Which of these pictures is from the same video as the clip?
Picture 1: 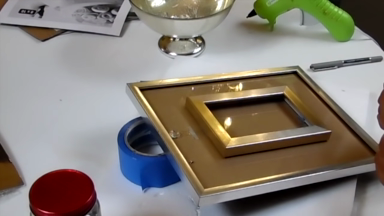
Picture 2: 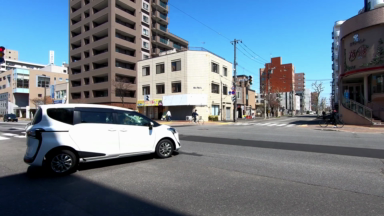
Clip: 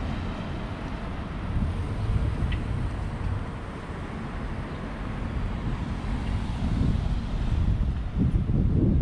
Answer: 2